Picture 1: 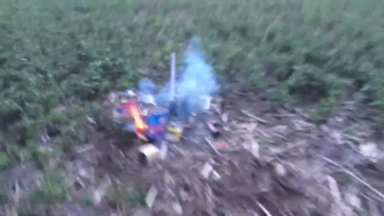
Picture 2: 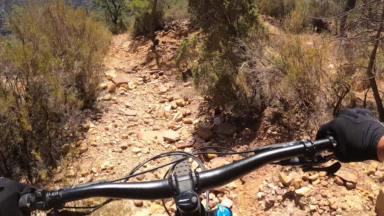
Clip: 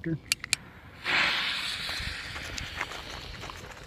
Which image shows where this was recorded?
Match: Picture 1